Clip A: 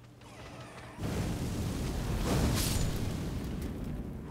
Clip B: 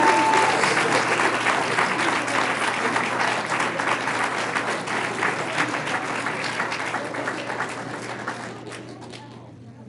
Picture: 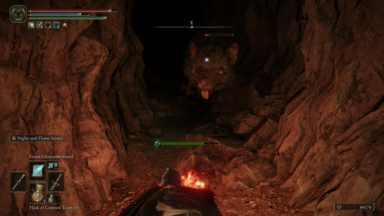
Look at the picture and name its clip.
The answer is A